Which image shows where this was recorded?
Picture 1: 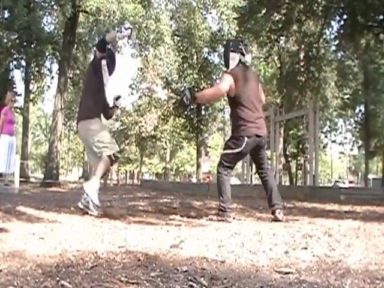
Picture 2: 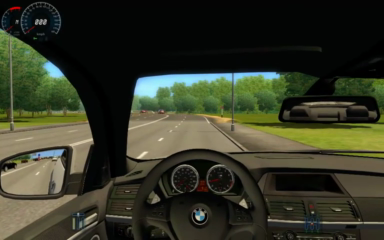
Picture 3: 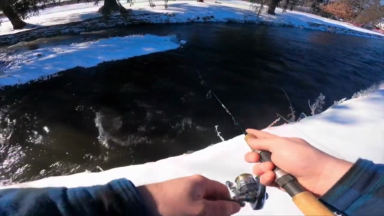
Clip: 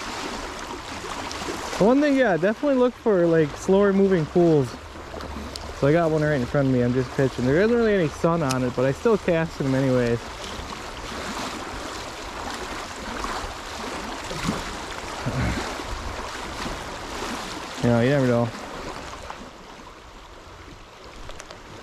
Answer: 3